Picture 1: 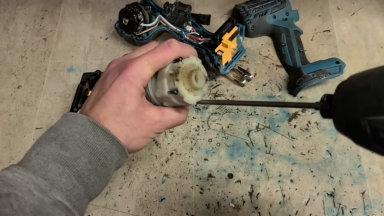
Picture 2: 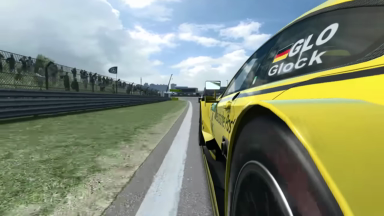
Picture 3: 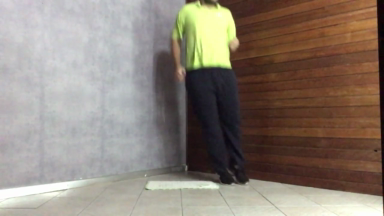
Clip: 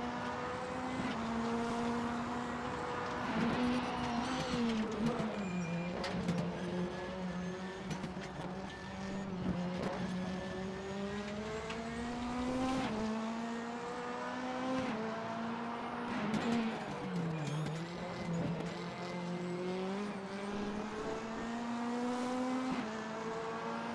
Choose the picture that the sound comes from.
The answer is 2